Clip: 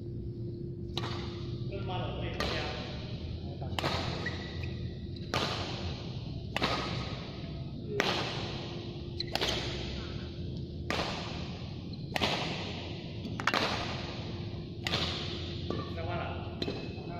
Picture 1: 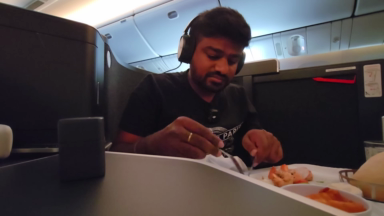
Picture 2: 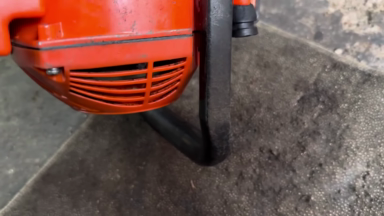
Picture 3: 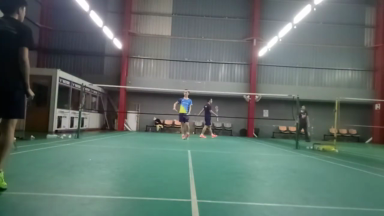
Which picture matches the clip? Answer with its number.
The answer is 3